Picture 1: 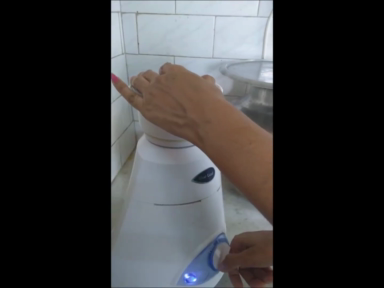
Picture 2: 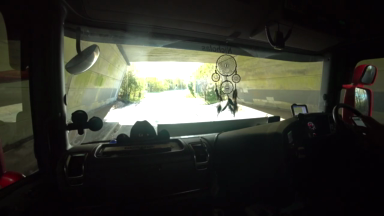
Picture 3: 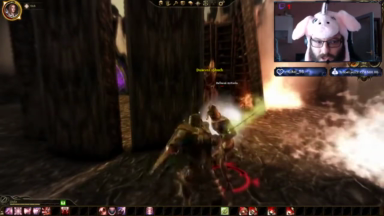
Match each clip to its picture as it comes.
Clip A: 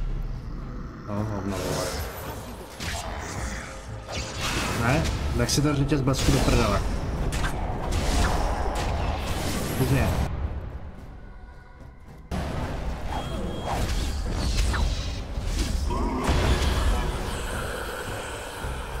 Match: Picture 3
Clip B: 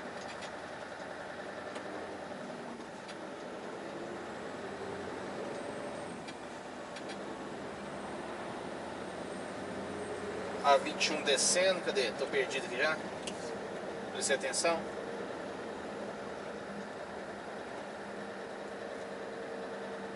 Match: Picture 2